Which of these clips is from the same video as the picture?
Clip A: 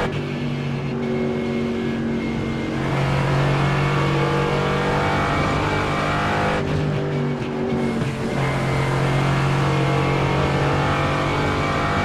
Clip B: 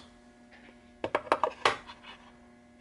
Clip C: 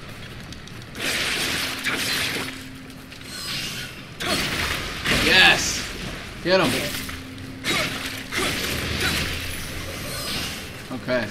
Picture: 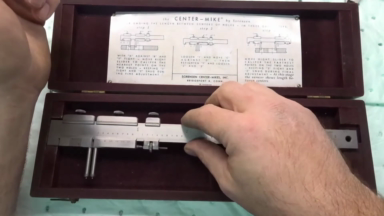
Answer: B